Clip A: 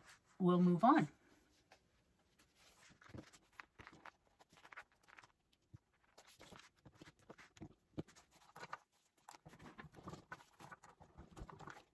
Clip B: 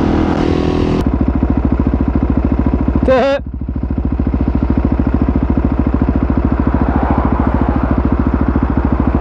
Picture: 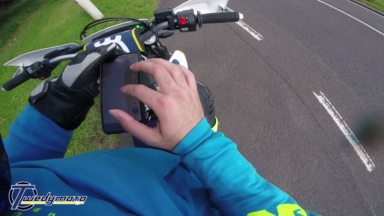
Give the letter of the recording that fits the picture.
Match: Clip B